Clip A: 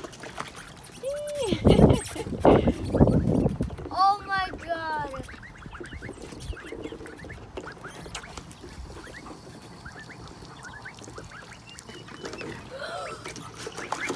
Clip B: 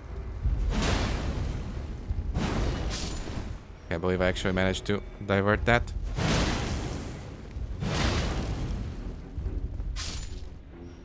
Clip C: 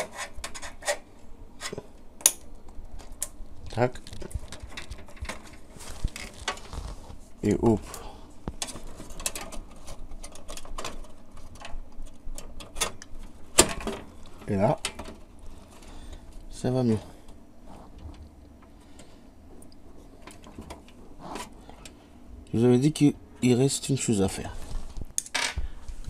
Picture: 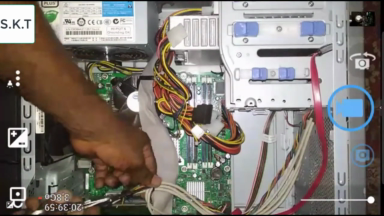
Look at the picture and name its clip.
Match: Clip C